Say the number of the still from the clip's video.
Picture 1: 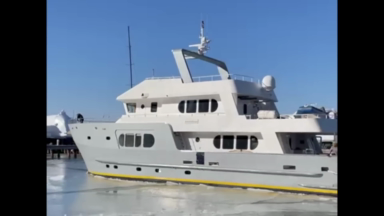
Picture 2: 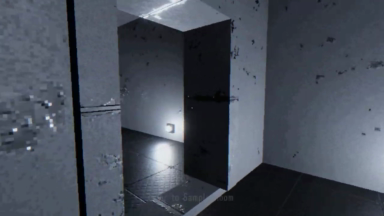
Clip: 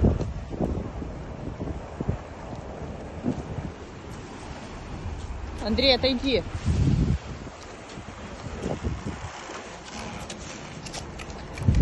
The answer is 1